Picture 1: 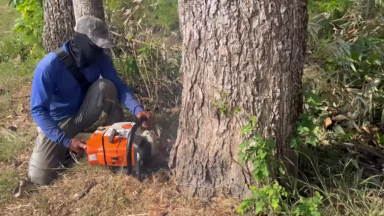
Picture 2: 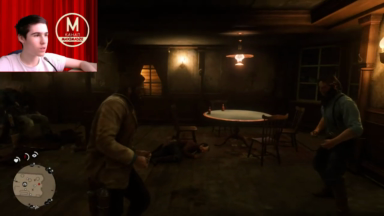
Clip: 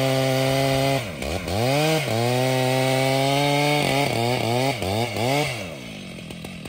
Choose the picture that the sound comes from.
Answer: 1